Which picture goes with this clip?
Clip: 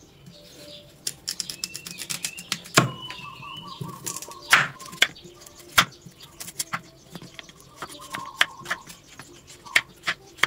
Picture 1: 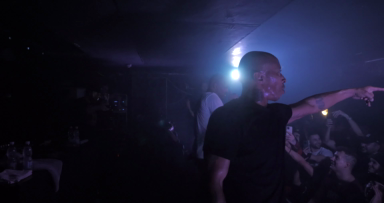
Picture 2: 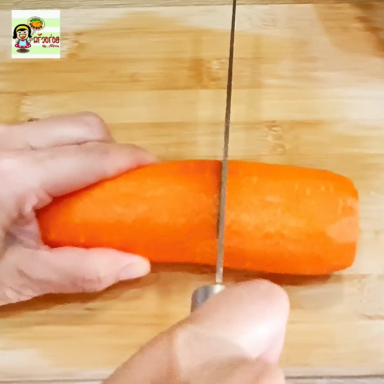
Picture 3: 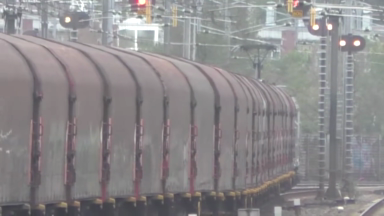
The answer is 2